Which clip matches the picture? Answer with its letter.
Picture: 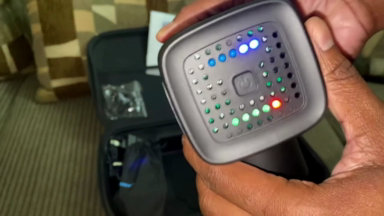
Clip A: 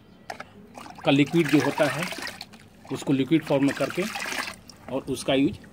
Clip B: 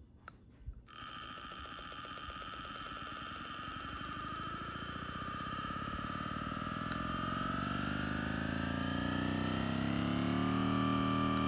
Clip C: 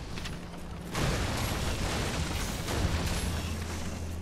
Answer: B